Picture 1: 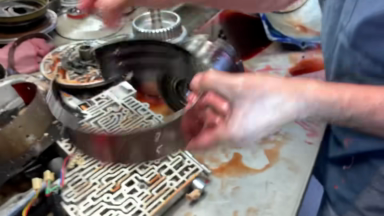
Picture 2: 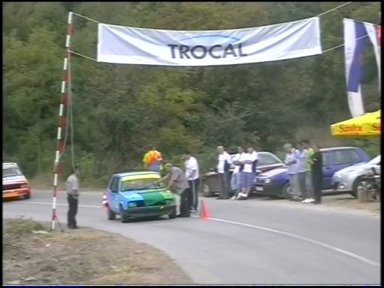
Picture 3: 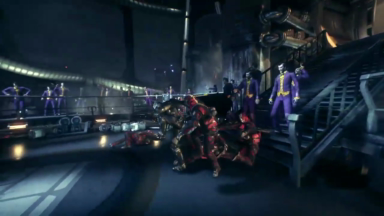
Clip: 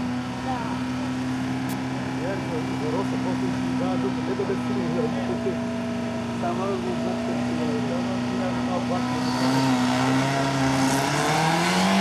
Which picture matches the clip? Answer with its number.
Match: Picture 2